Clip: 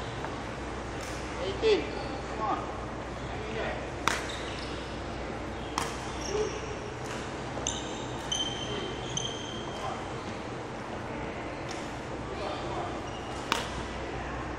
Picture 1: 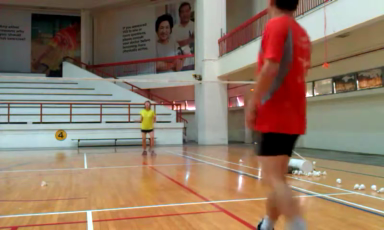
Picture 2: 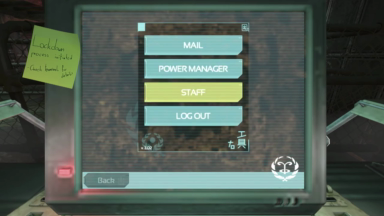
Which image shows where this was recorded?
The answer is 1